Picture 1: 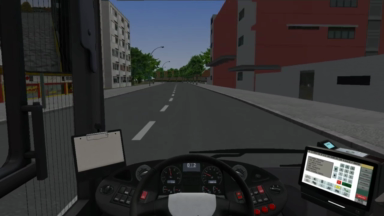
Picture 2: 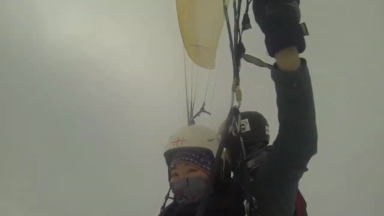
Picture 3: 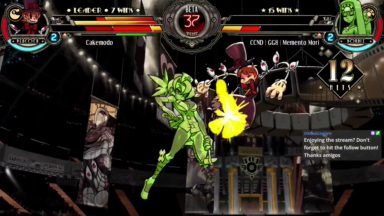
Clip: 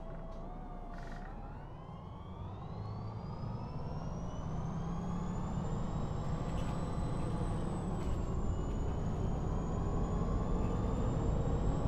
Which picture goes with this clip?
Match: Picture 1